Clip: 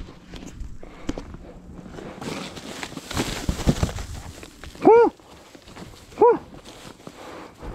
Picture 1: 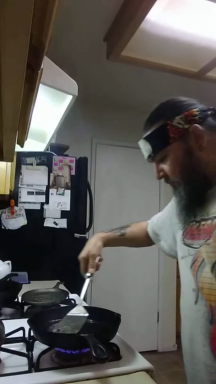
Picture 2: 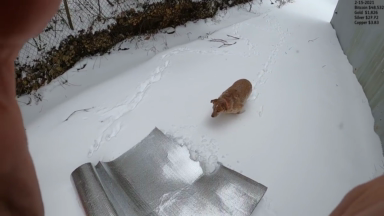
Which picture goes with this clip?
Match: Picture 2